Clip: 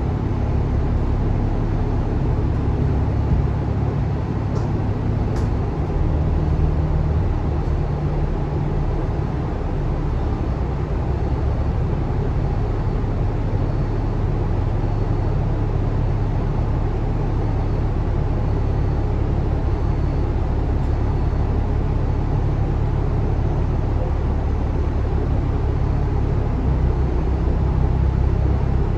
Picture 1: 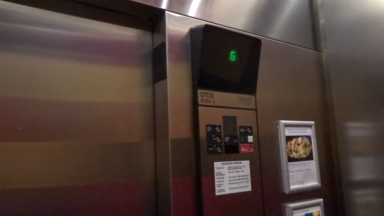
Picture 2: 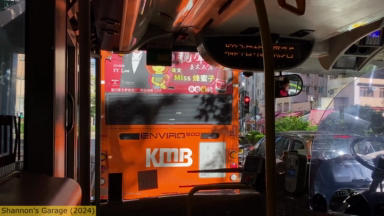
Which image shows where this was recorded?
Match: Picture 2